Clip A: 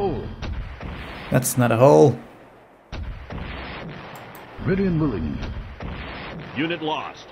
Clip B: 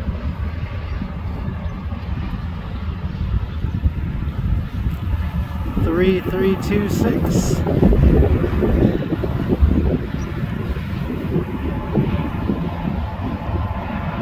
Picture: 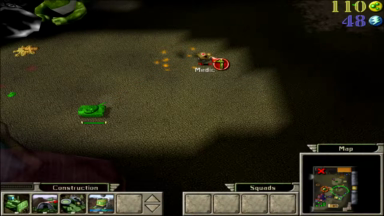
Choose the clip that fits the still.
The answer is A